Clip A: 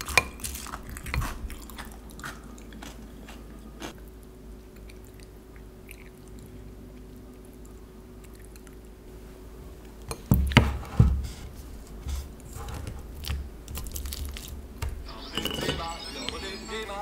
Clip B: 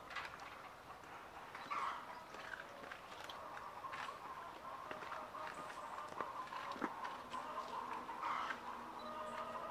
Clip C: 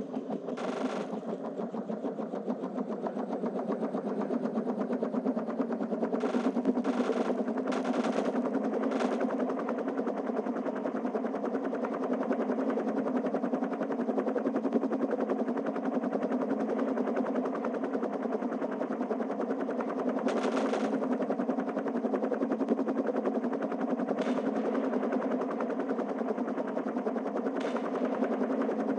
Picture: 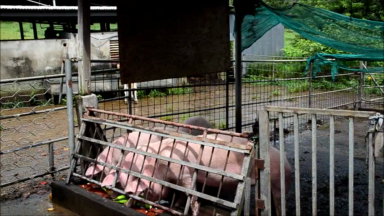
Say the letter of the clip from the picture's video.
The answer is B